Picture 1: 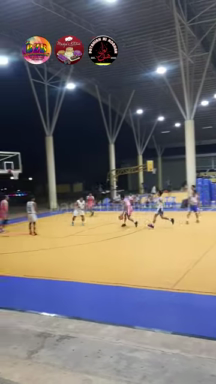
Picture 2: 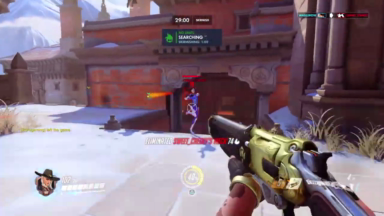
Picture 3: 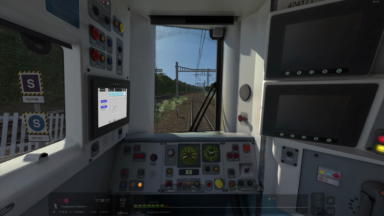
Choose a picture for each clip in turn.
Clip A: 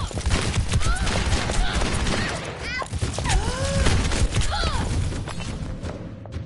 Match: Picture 2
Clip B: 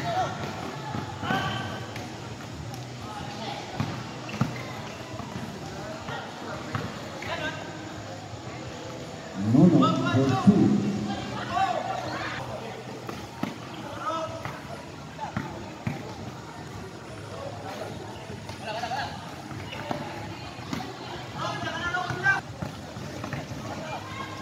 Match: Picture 1